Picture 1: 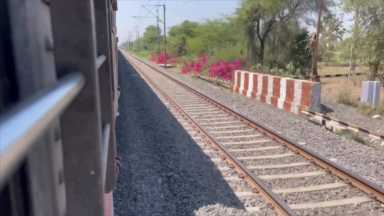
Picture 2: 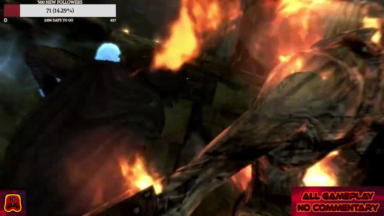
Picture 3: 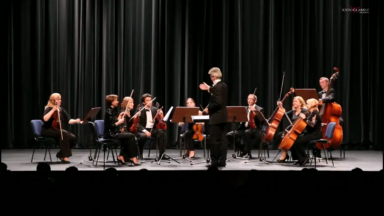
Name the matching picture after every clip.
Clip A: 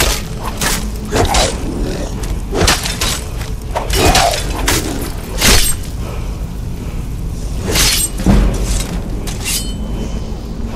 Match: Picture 2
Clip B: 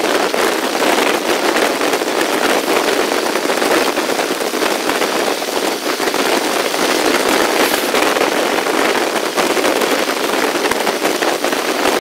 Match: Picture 1